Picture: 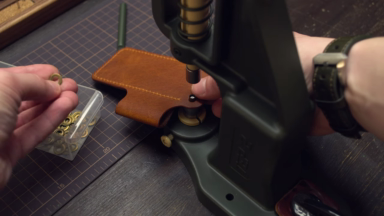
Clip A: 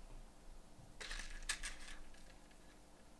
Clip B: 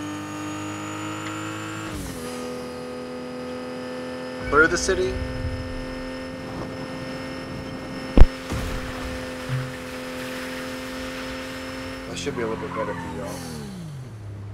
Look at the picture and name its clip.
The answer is A